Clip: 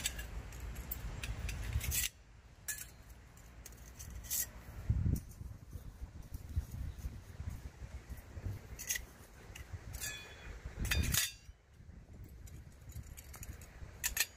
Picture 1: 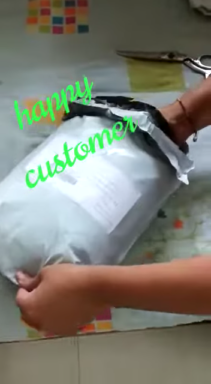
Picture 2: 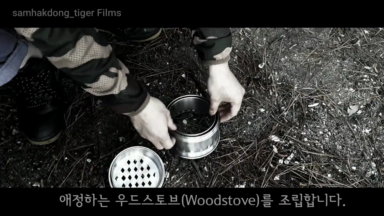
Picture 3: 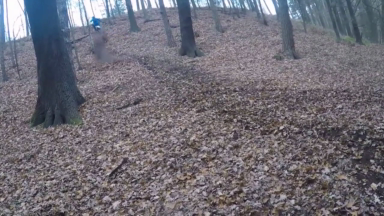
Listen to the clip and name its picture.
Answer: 2